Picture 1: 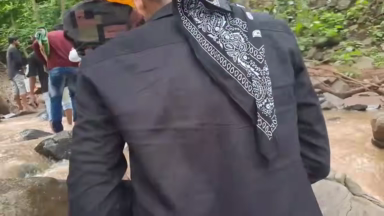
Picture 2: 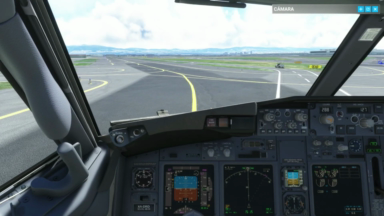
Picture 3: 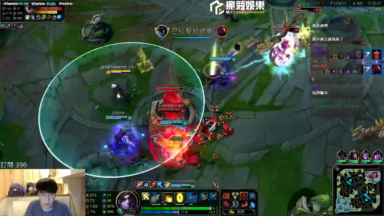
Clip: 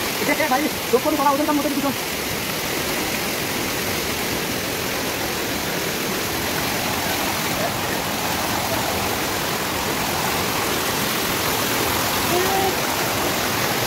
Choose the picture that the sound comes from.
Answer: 1